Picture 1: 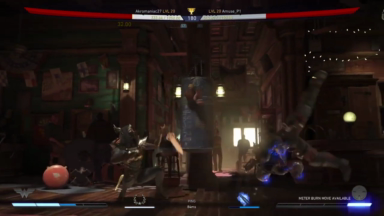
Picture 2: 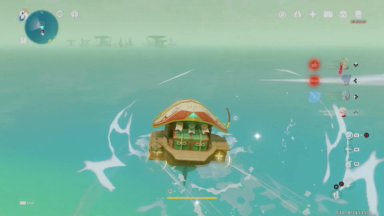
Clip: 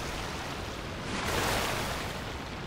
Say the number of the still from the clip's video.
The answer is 2